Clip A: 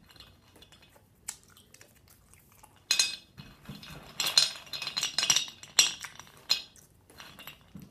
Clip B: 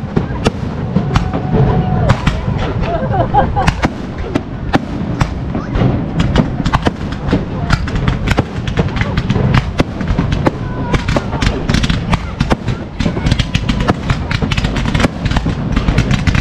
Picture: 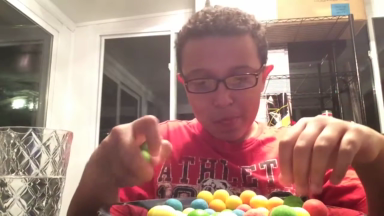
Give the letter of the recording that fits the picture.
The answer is A